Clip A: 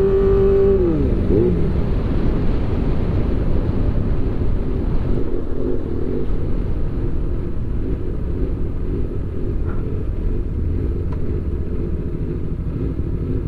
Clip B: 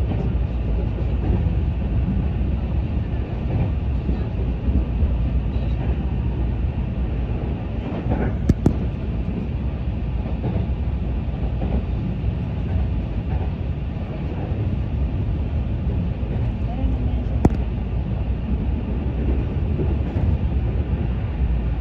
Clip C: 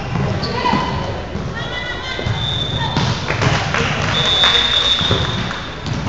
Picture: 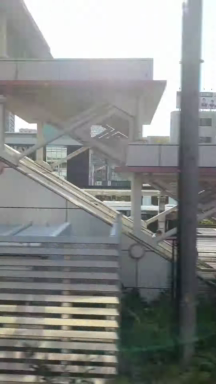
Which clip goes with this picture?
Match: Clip B